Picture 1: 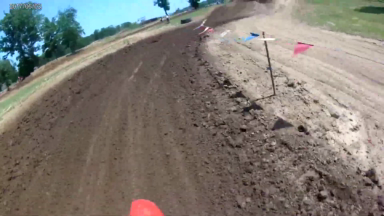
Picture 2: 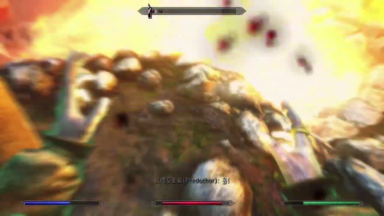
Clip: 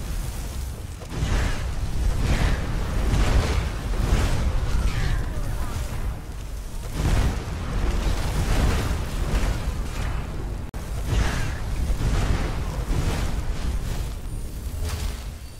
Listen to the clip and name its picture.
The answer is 2